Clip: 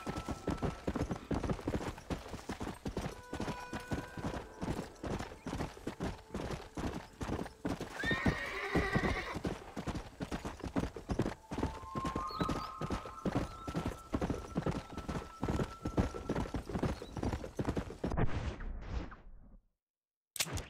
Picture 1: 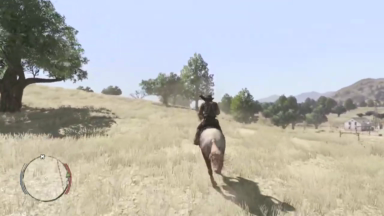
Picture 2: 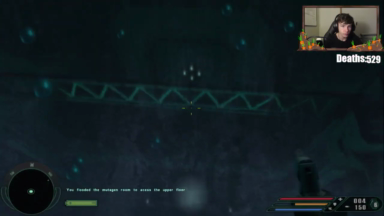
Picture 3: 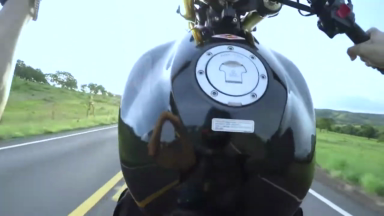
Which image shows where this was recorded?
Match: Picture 1